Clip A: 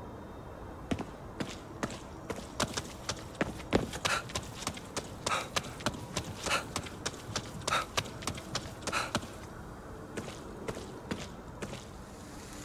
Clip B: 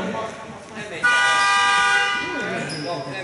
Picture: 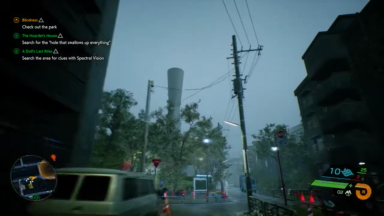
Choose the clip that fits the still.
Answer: A